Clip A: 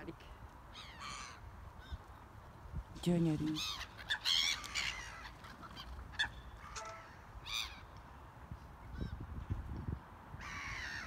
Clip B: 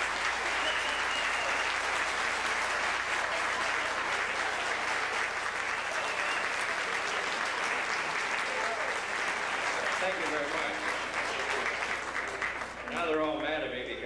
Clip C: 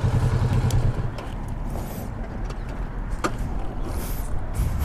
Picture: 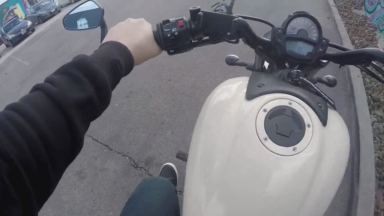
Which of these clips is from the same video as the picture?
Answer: C